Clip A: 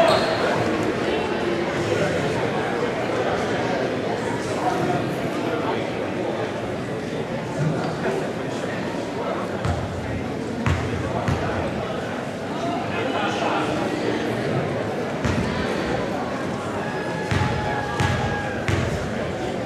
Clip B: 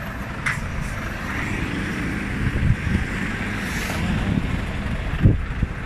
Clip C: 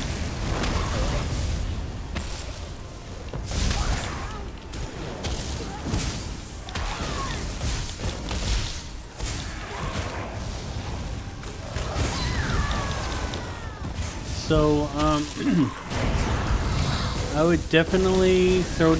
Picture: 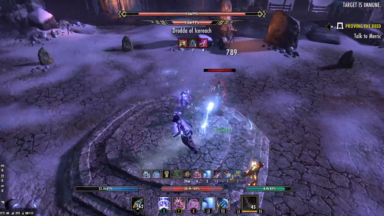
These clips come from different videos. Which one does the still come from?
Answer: C